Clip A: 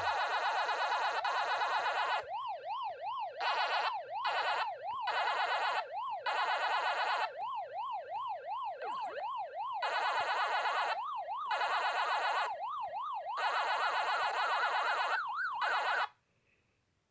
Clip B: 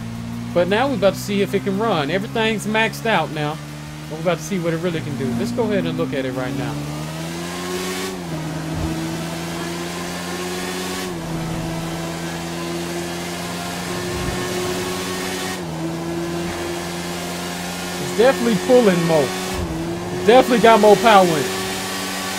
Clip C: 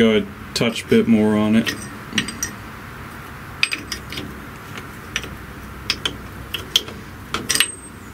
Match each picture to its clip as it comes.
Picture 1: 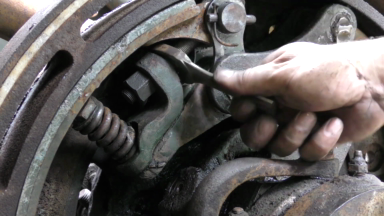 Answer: C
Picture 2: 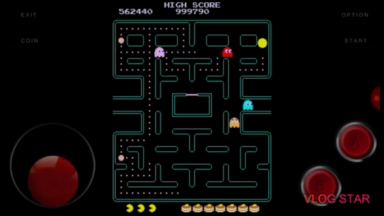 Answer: A